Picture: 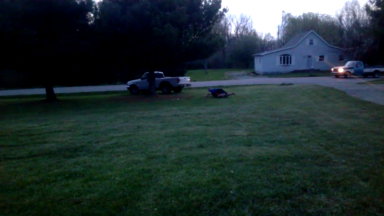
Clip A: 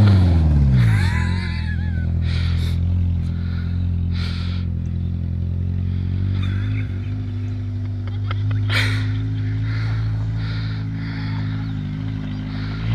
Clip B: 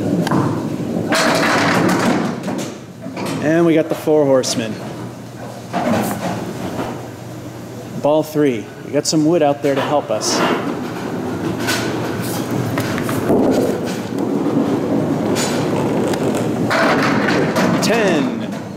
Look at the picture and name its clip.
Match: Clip A